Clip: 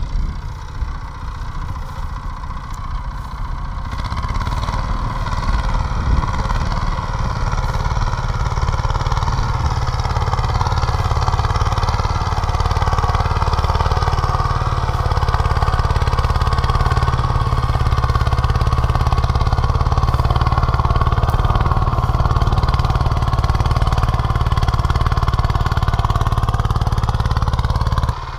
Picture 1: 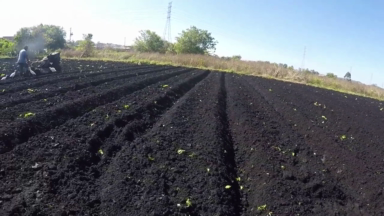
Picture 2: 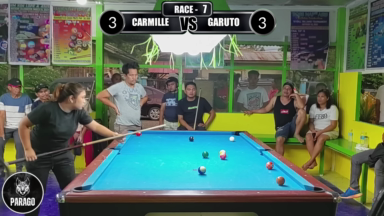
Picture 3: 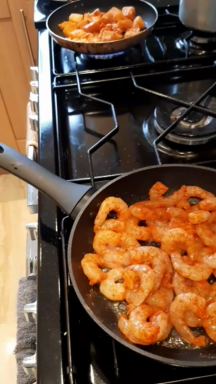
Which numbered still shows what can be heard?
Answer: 1